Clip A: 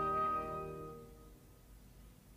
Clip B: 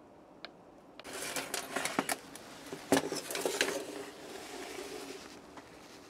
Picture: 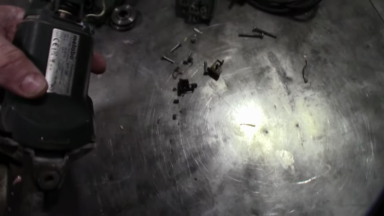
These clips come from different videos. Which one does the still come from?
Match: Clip B